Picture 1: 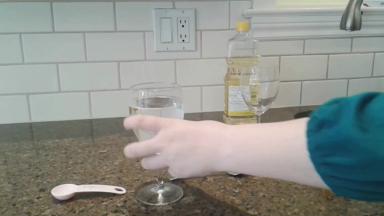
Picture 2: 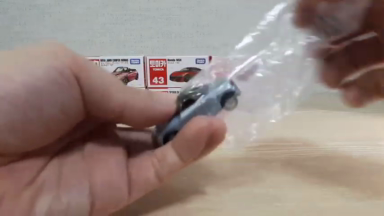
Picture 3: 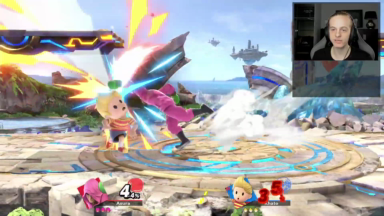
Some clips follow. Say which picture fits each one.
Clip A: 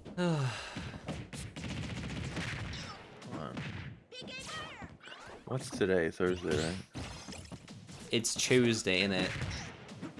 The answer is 3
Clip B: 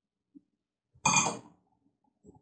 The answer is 1